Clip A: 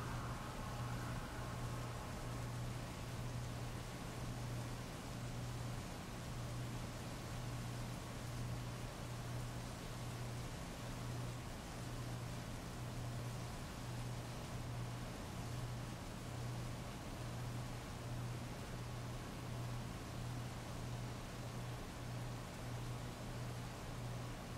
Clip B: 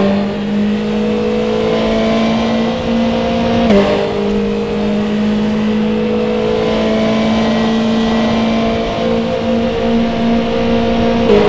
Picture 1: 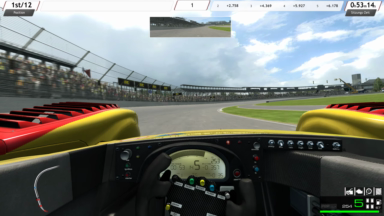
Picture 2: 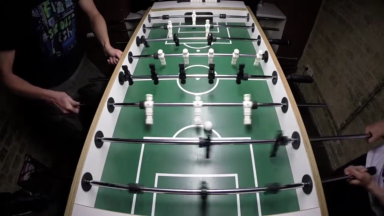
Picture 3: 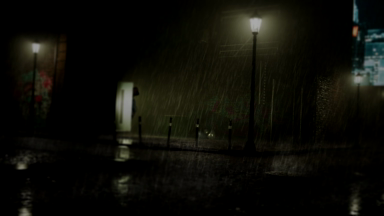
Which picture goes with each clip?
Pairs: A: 3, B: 1